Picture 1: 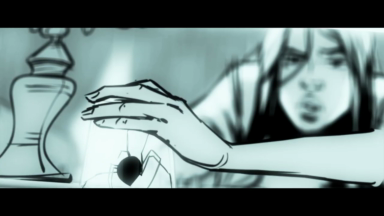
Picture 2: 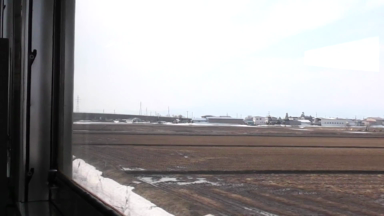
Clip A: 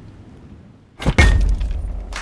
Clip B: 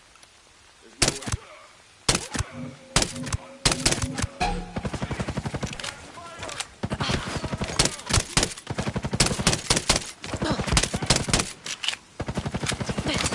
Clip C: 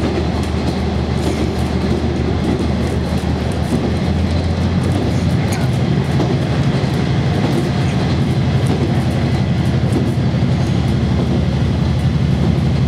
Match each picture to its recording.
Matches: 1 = A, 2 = C